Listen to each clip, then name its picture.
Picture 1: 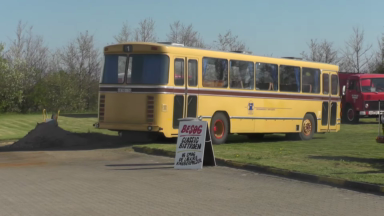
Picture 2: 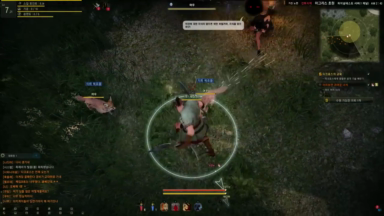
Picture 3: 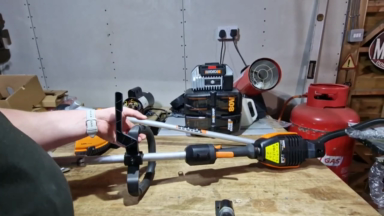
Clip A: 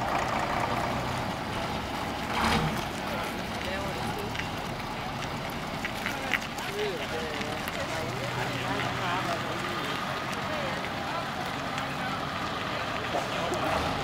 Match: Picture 1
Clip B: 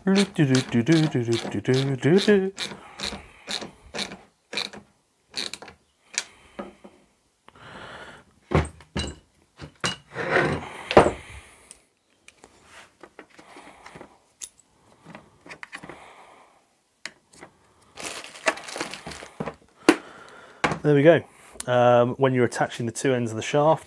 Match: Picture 3